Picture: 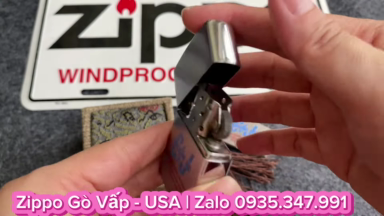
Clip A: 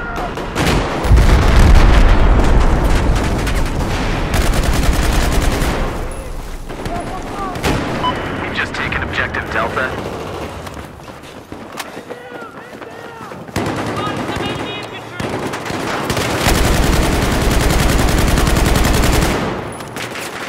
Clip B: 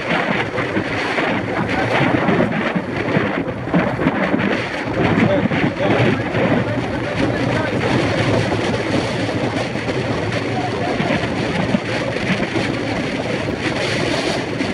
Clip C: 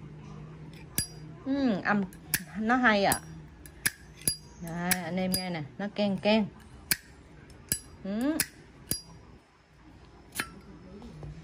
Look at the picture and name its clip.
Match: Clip C